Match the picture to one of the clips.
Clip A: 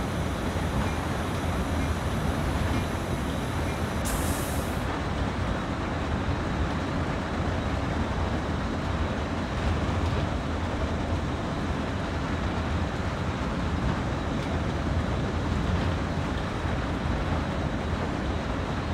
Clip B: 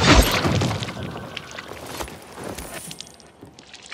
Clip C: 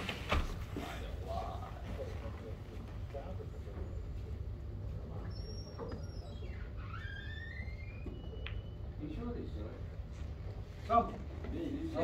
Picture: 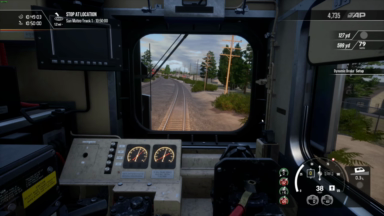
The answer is A